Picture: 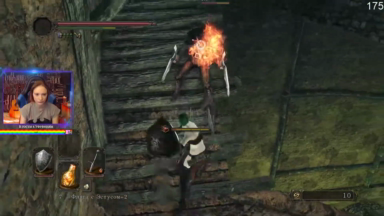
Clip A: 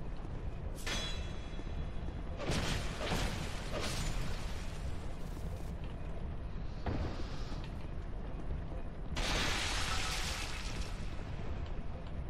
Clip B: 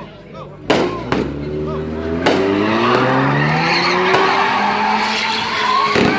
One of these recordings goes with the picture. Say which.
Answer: A